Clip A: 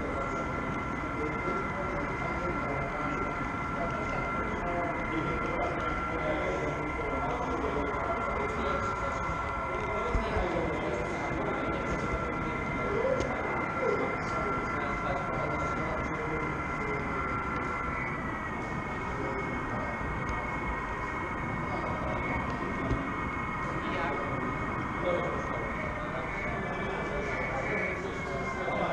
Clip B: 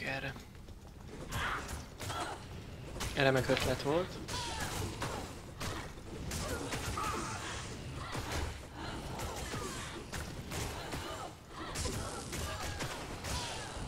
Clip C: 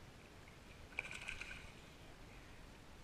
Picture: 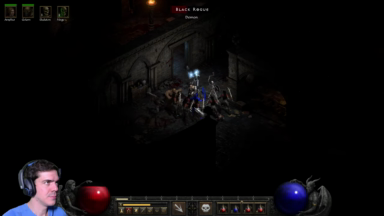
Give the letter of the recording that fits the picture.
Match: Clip B